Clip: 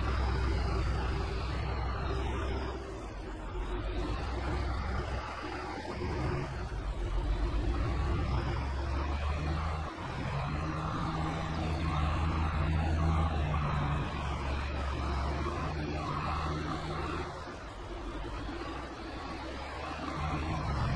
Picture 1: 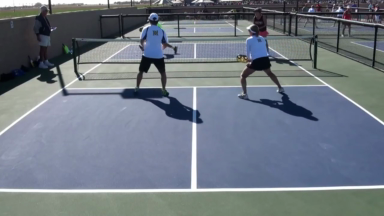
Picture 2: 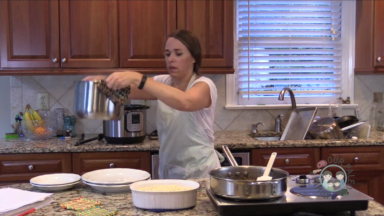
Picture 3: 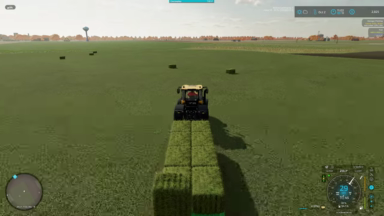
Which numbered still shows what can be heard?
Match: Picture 3